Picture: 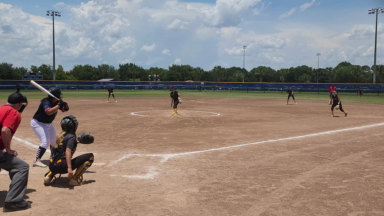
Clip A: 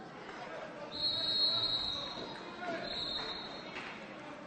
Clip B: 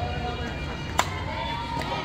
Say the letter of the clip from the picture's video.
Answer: B